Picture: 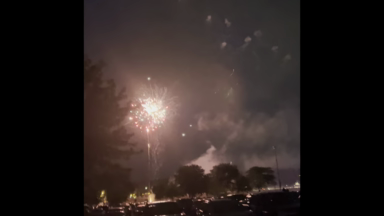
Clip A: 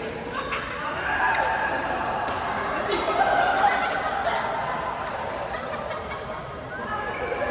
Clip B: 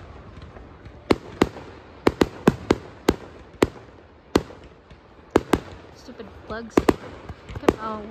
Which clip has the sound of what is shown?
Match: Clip B